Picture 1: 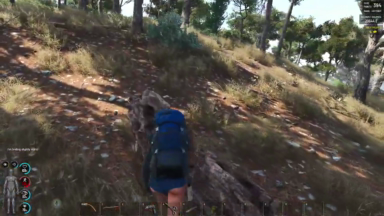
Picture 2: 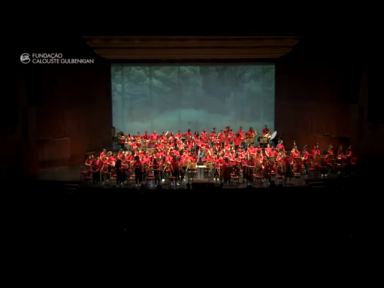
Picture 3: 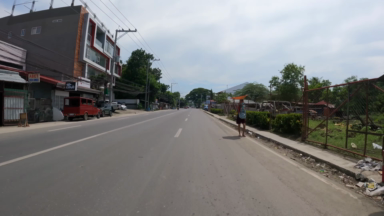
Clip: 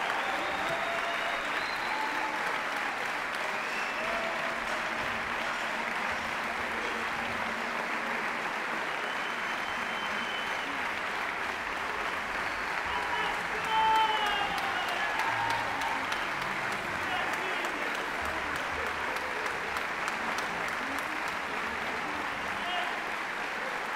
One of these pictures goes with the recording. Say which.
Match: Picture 2